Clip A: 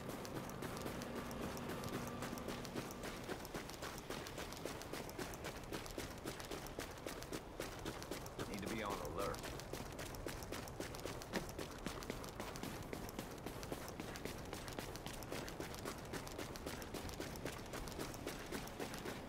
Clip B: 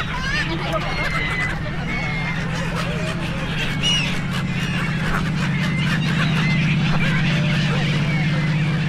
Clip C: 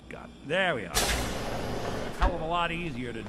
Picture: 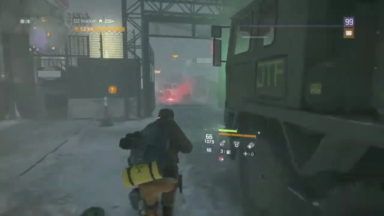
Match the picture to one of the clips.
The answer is A